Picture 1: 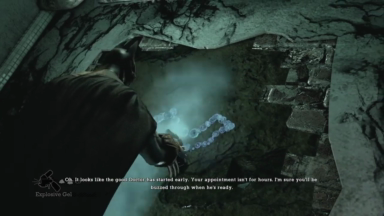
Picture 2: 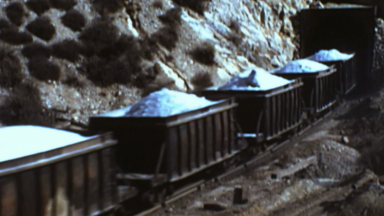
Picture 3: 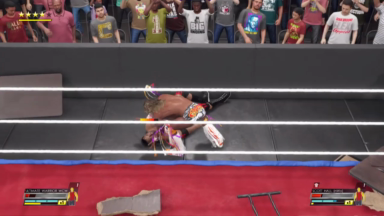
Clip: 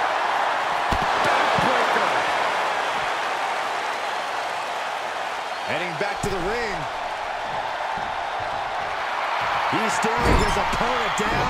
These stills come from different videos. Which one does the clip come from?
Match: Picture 3